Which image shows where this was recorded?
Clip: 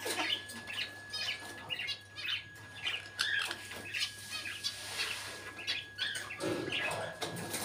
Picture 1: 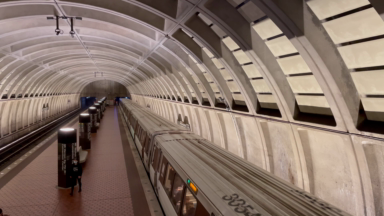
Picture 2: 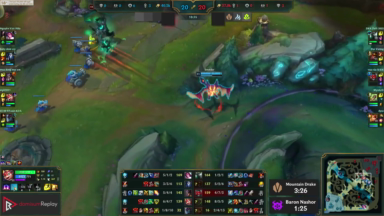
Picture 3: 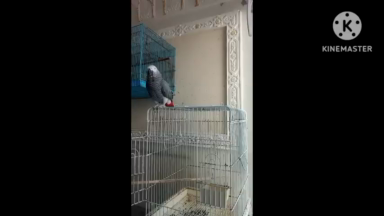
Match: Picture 3